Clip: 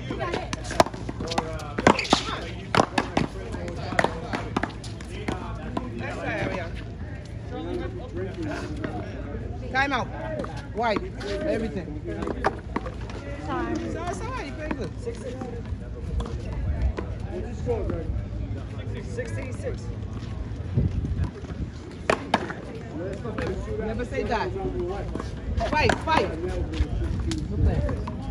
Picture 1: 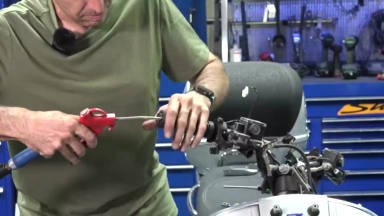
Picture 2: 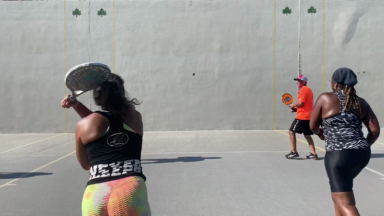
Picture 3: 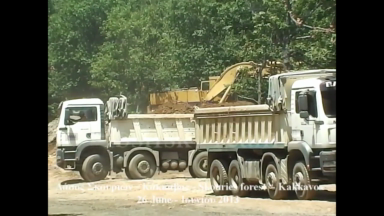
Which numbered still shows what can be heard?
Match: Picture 2